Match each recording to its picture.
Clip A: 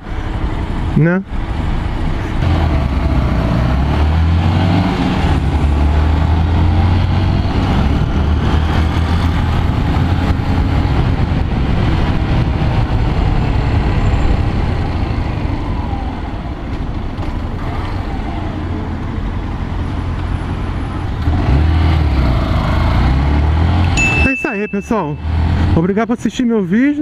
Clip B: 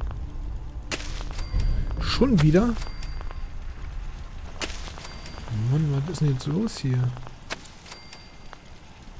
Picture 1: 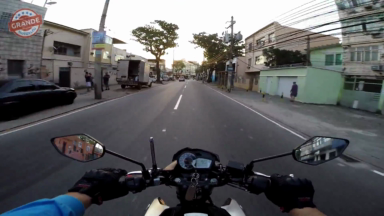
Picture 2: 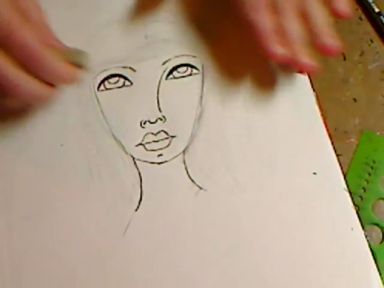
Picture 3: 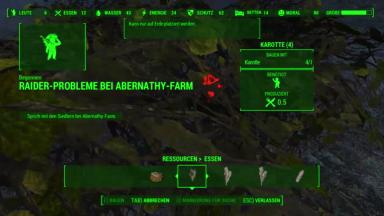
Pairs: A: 1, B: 3